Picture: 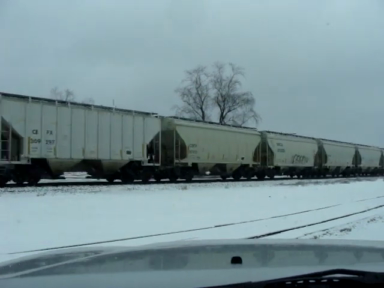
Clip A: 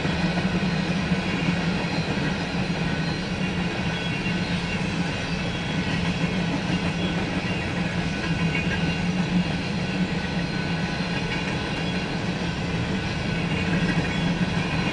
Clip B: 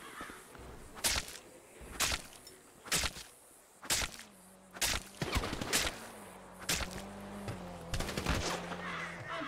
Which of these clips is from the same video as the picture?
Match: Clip A